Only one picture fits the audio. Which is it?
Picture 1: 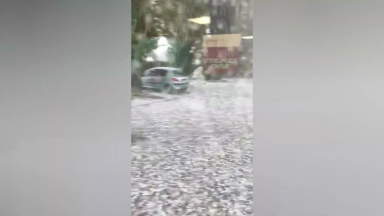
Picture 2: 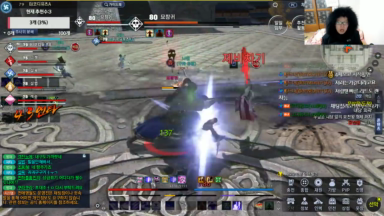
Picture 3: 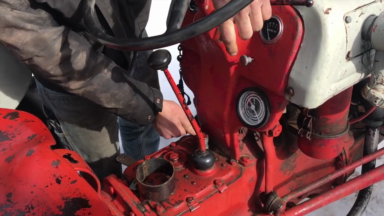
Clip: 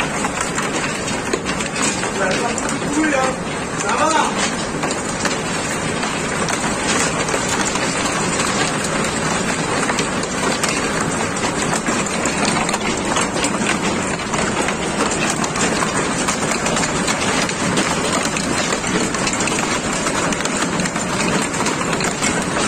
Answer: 1